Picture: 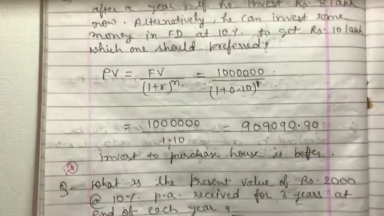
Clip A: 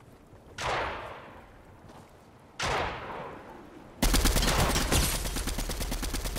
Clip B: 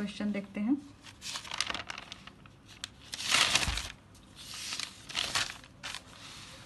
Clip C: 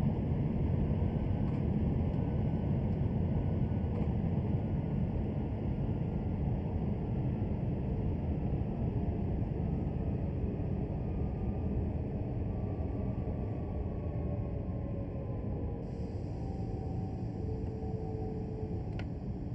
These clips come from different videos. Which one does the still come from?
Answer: B